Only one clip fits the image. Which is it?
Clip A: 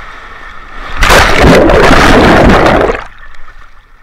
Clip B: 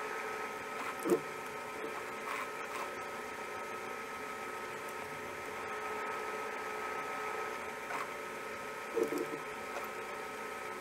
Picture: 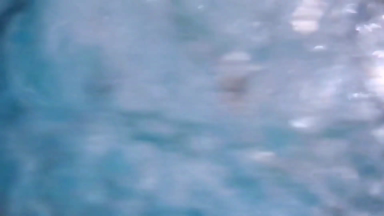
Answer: A